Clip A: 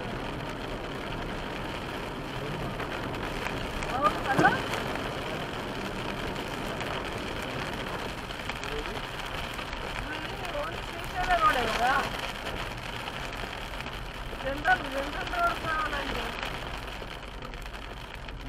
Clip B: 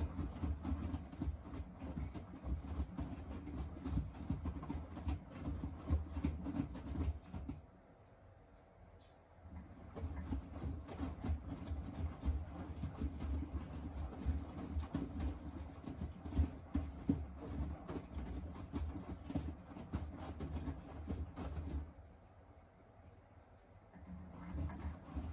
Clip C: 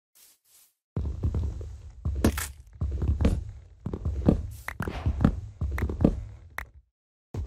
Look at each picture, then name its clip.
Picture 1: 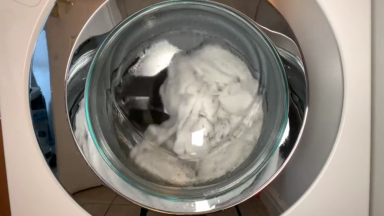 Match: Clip B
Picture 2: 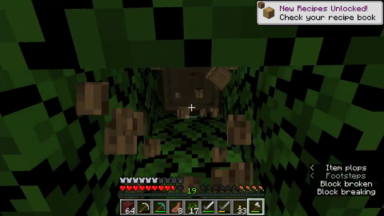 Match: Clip C